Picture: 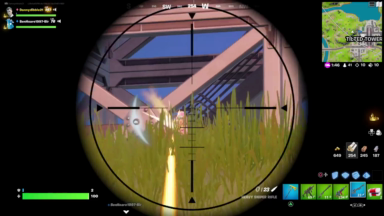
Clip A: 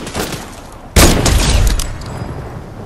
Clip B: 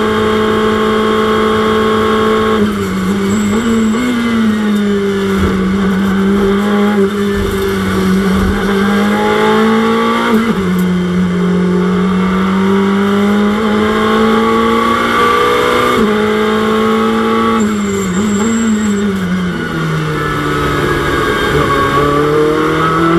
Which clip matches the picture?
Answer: A